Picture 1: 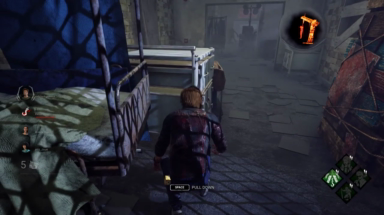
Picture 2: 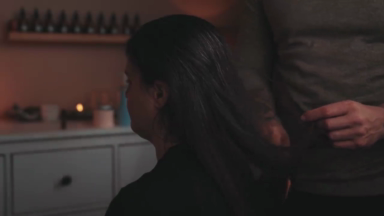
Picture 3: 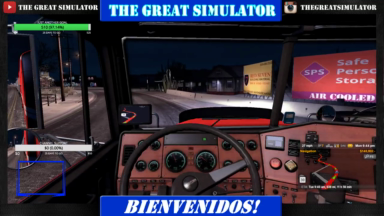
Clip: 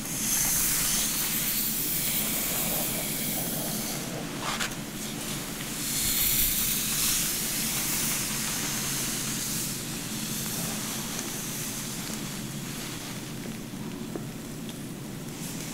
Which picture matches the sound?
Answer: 2